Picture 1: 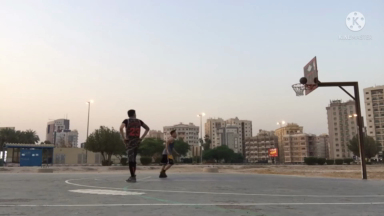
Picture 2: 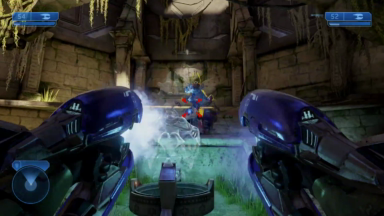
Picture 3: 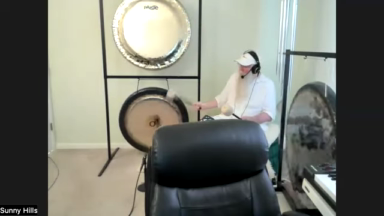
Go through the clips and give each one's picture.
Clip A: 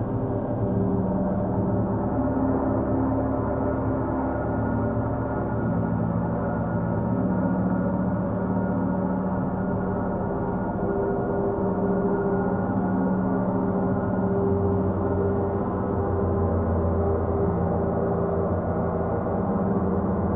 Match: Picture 3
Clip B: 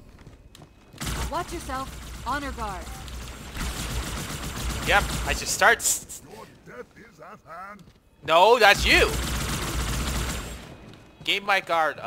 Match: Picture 2